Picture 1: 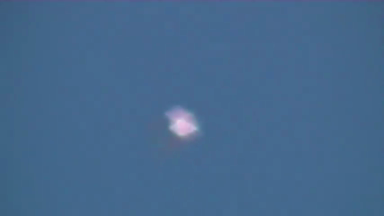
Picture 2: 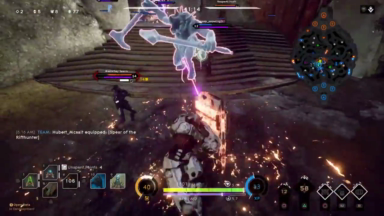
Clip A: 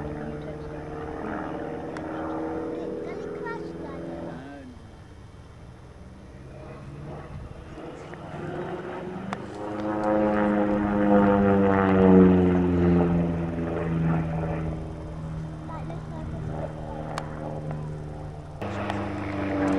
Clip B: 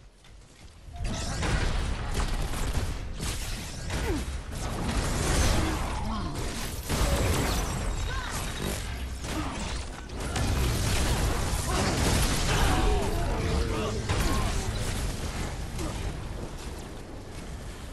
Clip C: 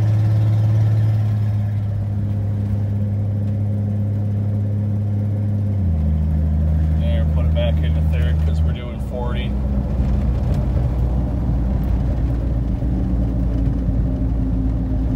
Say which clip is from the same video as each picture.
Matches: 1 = A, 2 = B